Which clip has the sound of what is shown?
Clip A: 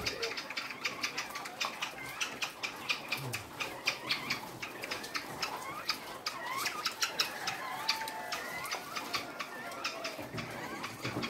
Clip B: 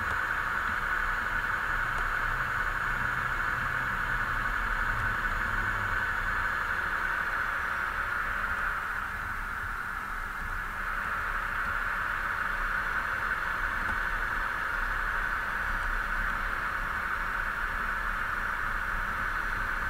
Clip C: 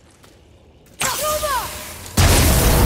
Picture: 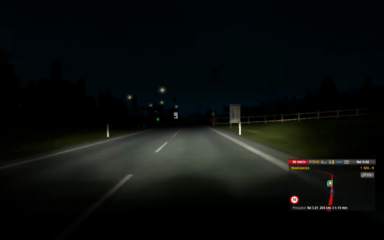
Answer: B